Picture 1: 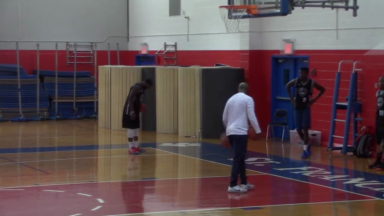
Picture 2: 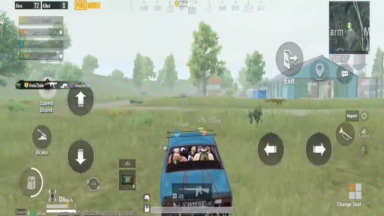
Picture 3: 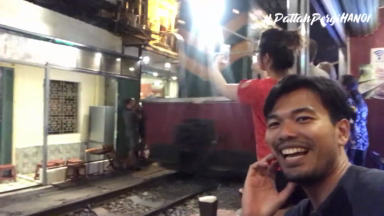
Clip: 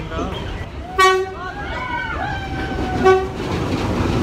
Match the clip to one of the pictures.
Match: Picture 3